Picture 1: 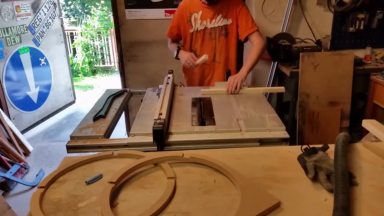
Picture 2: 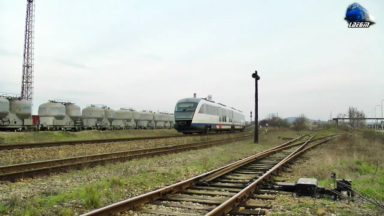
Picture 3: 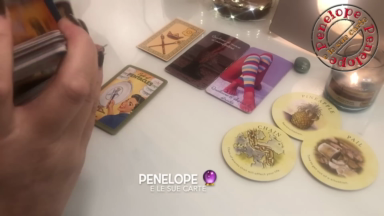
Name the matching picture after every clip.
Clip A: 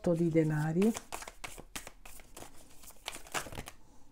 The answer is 3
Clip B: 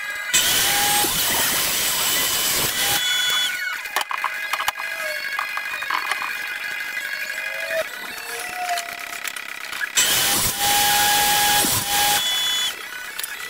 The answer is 1